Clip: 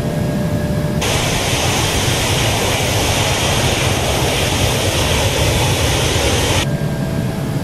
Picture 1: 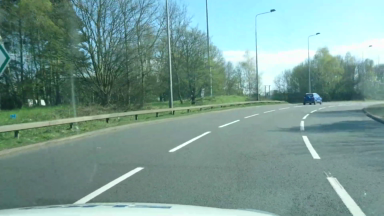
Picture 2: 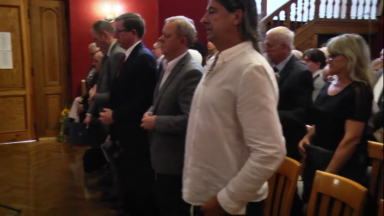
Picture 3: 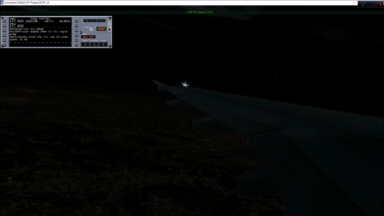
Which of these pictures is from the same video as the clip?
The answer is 3